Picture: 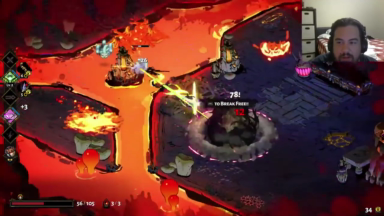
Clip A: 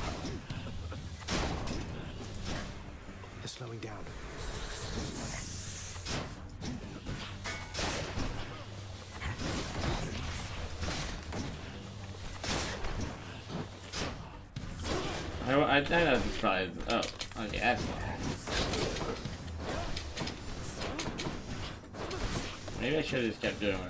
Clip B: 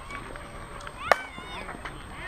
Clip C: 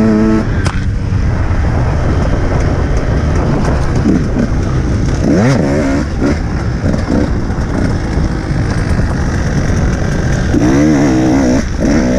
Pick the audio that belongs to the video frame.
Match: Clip A